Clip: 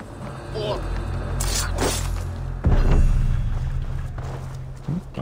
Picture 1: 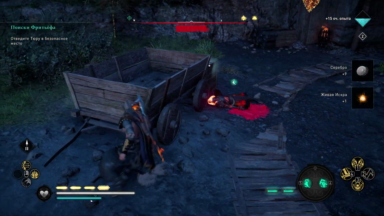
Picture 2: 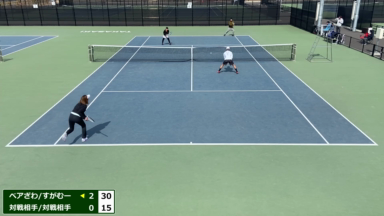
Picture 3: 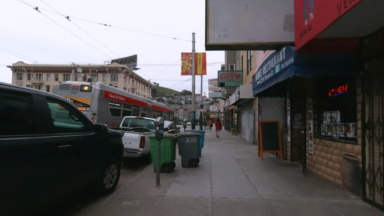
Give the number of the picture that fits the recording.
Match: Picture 1